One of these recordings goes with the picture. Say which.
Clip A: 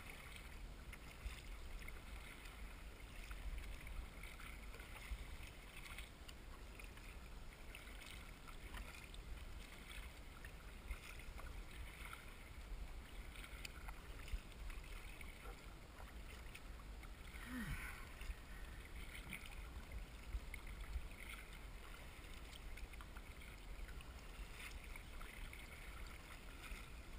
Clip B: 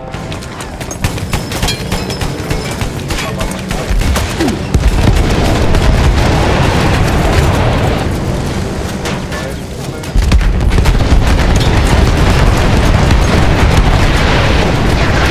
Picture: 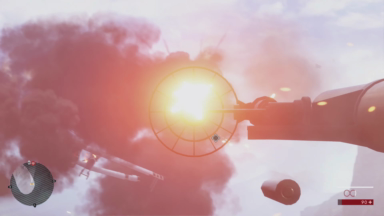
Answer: B